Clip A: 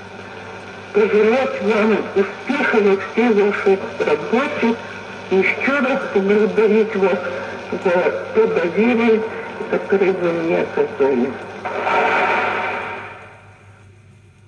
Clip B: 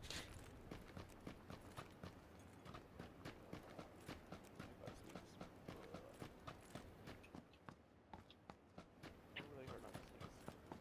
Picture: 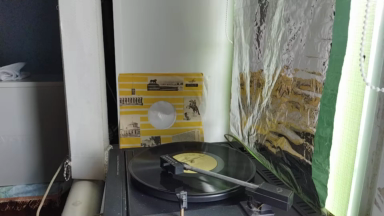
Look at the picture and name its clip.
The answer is A